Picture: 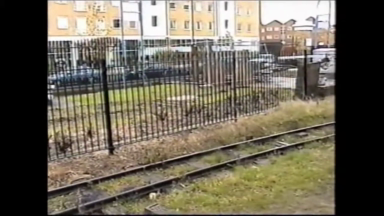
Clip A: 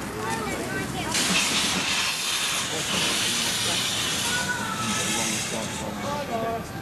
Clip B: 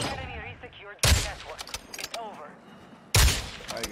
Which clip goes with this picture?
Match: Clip A